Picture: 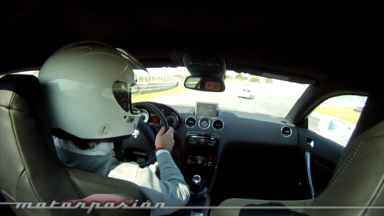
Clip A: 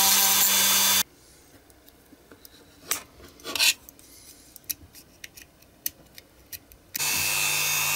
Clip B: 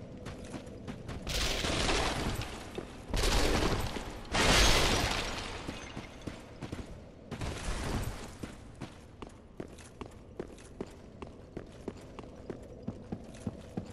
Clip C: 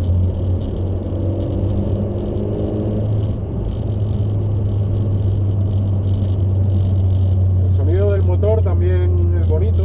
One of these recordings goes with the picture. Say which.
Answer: C